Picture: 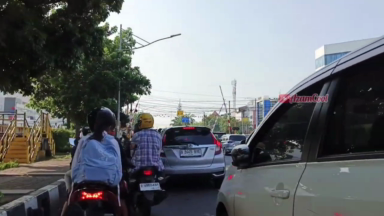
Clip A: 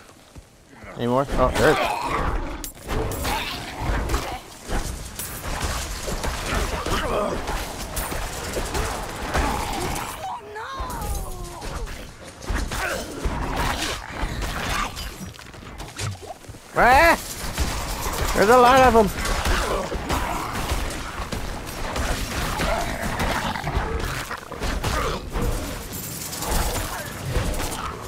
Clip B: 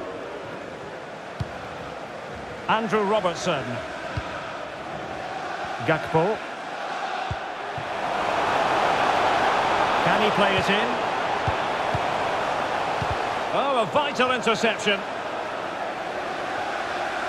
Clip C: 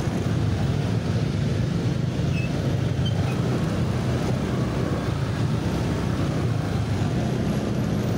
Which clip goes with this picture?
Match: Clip C